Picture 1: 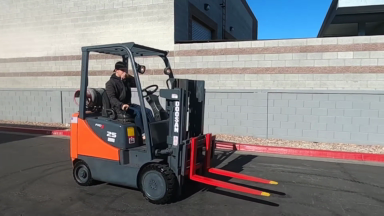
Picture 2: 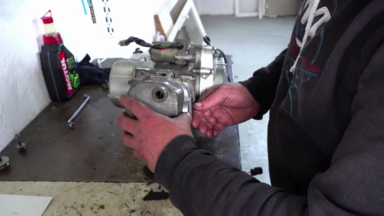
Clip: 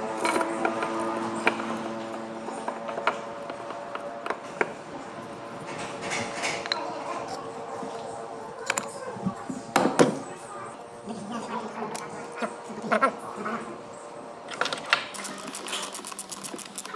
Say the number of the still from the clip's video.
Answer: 2